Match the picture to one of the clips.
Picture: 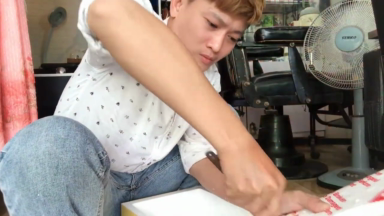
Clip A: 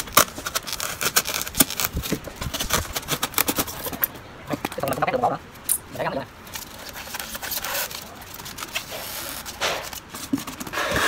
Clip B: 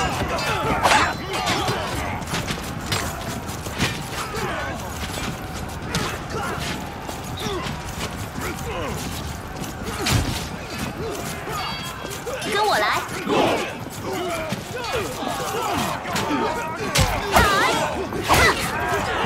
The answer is A